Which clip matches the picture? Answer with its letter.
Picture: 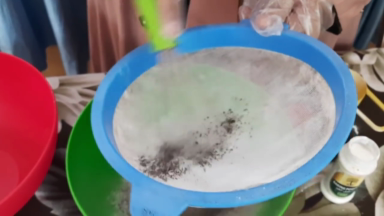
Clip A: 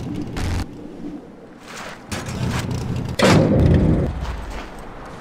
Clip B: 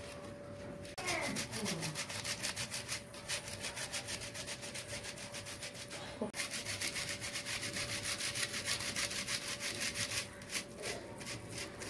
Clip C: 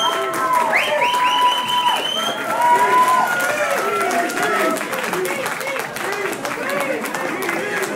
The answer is B